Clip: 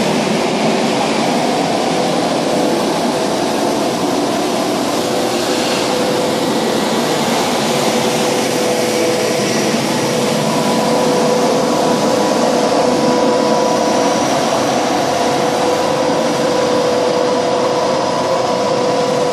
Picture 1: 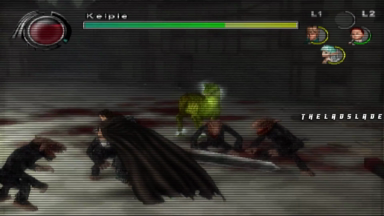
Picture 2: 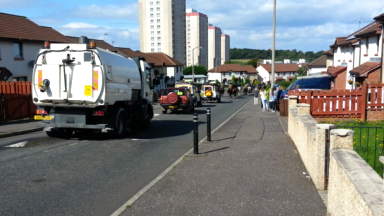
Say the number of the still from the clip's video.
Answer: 2